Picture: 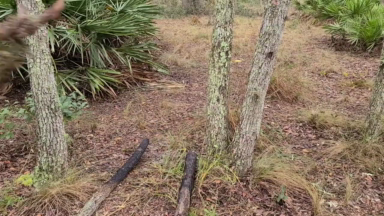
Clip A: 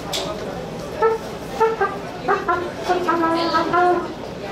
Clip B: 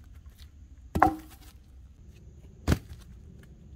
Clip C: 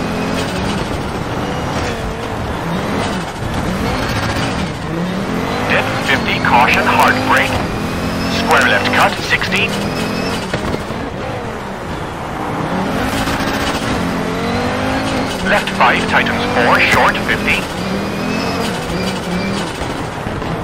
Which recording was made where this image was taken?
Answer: B